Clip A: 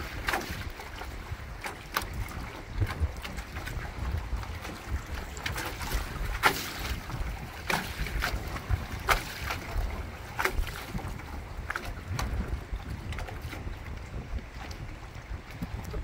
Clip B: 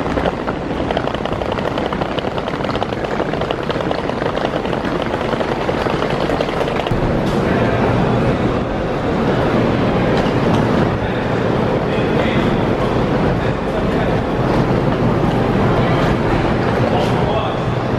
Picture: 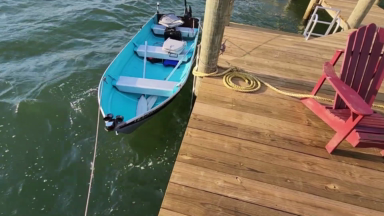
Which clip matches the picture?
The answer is A